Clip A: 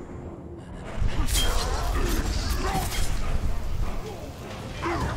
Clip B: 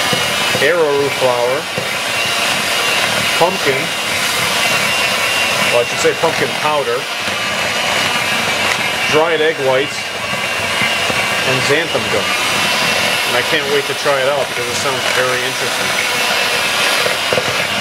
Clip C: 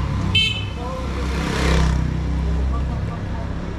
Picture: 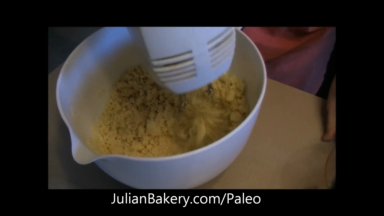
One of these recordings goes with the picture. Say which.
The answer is B